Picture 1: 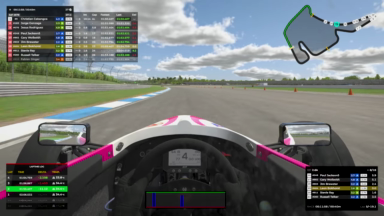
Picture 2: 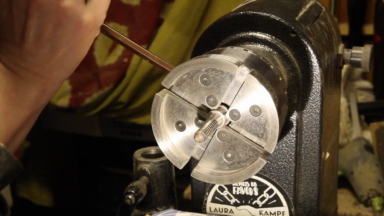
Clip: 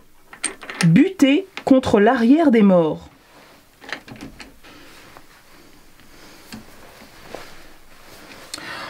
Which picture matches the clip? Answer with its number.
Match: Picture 2